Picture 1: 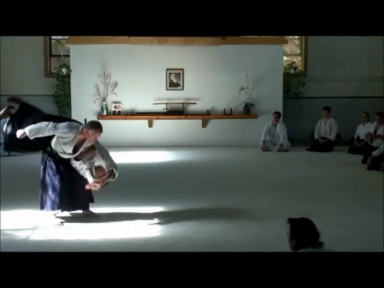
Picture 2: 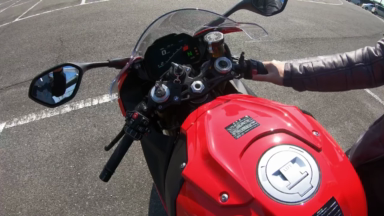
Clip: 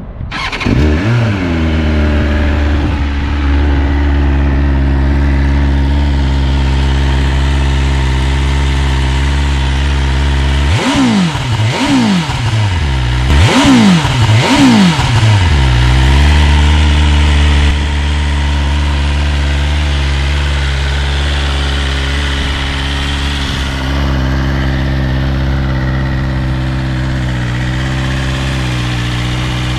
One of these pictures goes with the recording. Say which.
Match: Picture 2